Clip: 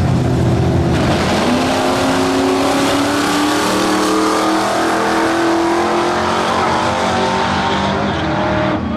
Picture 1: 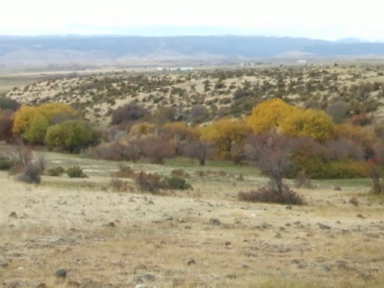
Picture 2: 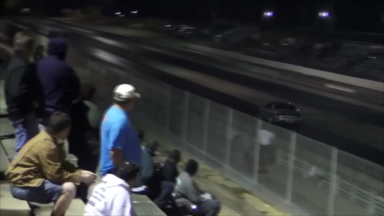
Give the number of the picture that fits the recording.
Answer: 2